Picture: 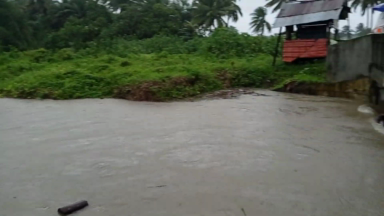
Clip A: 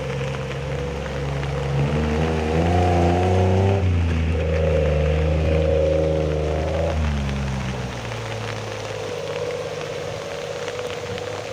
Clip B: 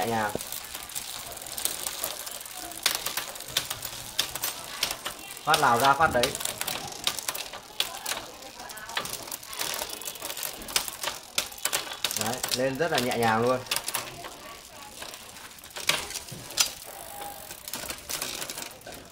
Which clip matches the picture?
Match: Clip A